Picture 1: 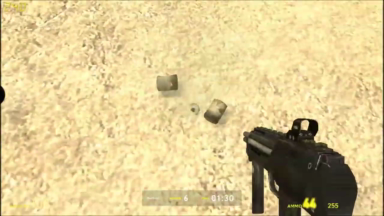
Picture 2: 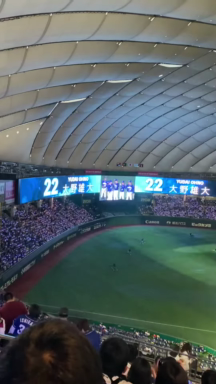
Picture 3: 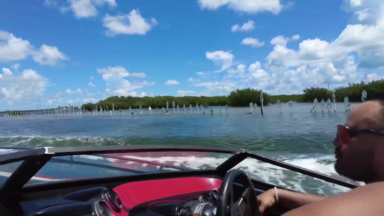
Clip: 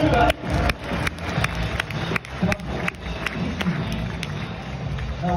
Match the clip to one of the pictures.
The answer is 2